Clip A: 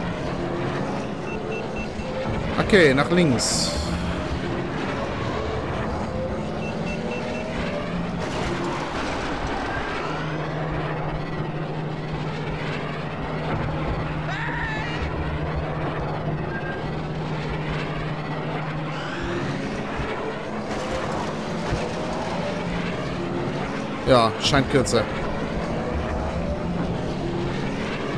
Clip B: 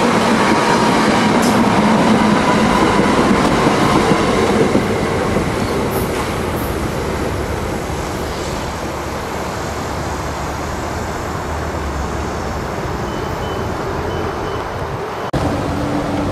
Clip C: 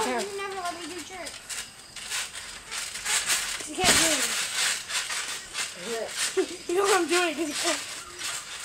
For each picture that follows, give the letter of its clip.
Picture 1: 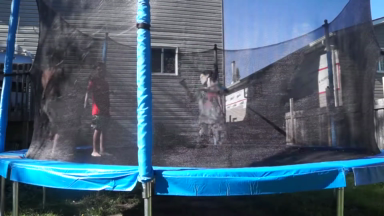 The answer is C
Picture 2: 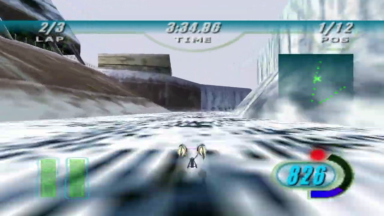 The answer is A